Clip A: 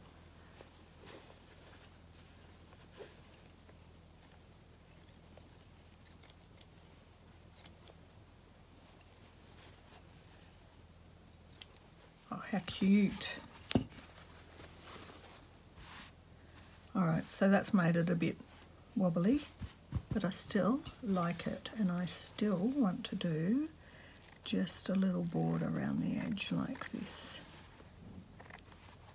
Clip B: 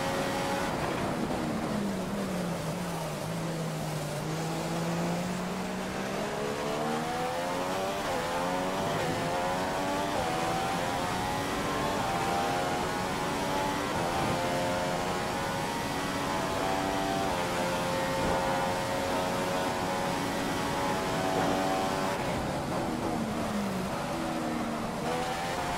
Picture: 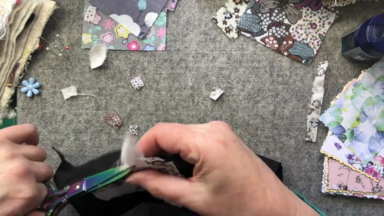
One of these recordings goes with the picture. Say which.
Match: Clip A